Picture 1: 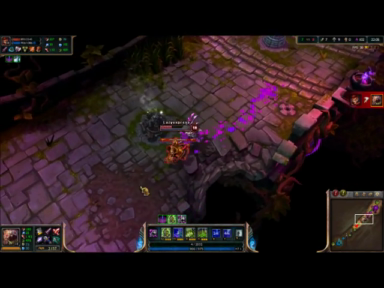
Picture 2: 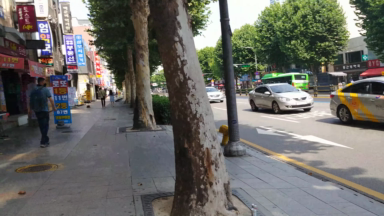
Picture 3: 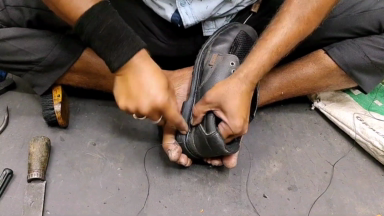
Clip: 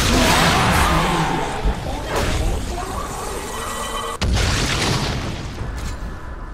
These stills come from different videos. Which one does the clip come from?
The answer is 1